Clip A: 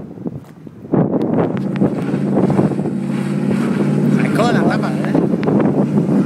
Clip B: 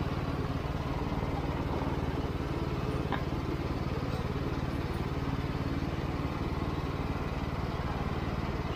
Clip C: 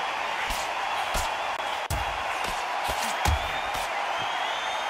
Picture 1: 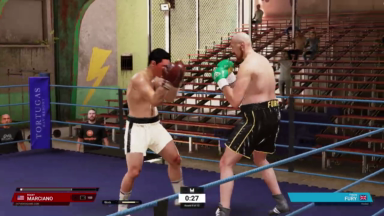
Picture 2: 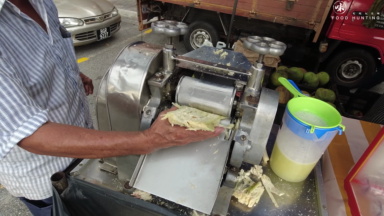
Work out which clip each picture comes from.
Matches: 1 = C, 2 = B